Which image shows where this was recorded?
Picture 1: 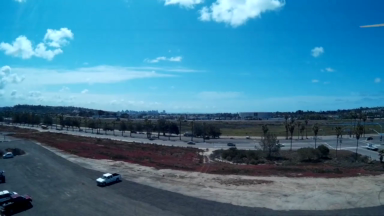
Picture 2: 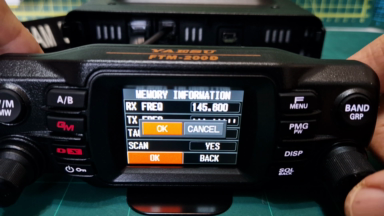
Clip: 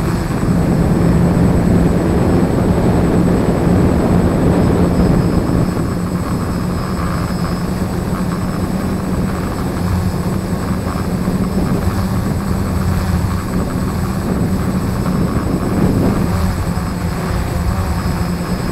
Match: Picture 1